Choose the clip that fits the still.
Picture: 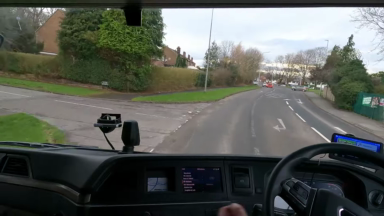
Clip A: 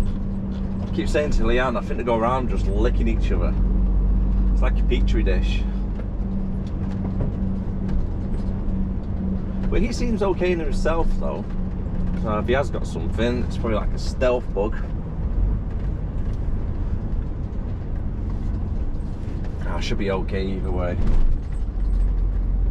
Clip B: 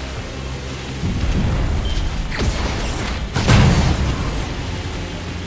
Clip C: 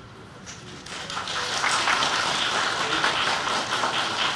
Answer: A